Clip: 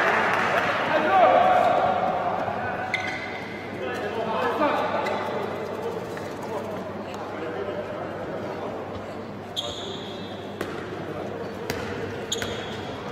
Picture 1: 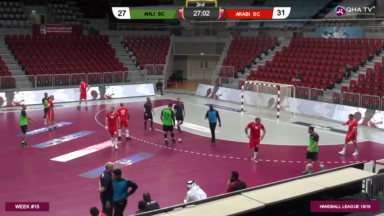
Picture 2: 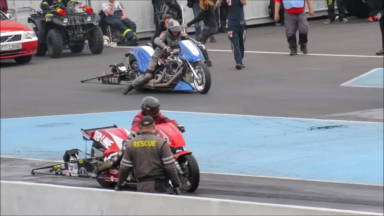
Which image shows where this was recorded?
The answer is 1